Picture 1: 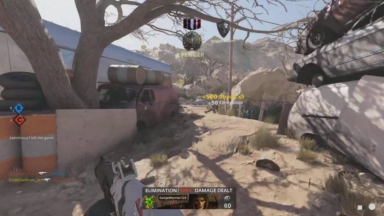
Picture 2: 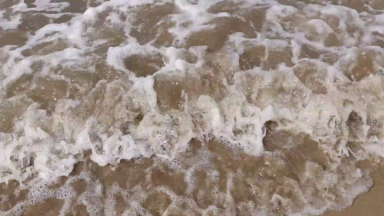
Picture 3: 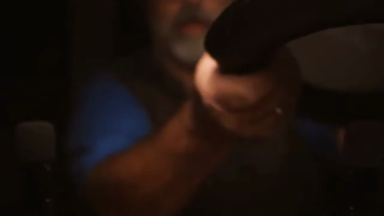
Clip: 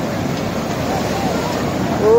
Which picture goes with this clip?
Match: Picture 2